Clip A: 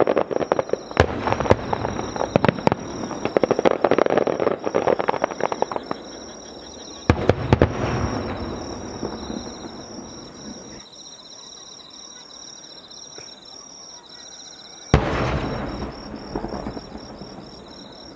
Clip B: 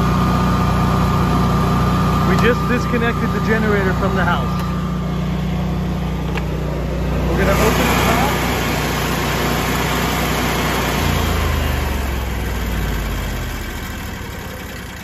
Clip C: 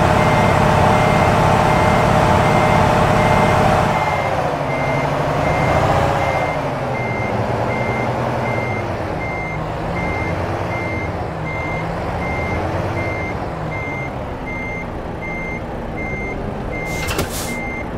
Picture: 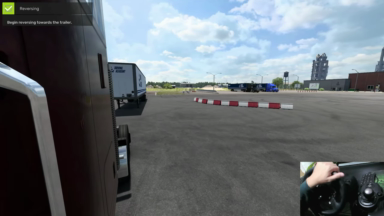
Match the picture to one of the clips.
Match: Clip C